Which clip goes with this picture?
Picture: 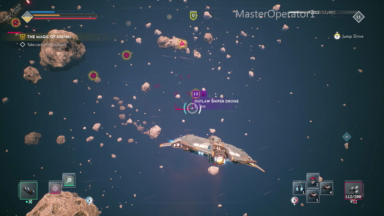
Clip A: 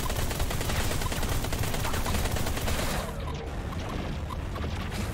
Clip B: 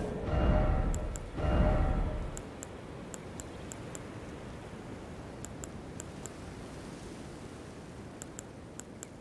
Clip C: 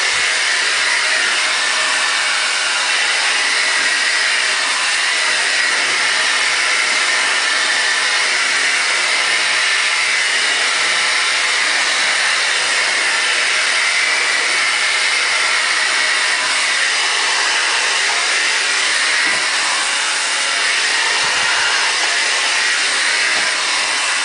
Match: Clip A